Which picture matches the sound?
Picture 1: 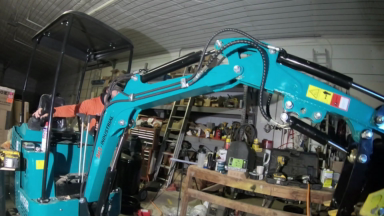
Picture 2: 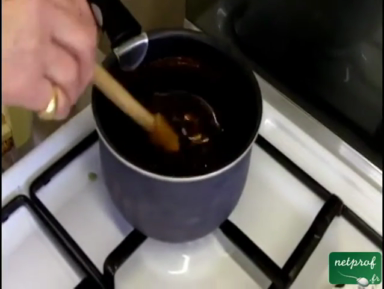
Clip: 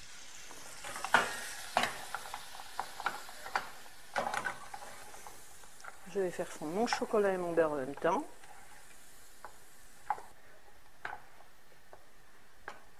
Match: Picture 2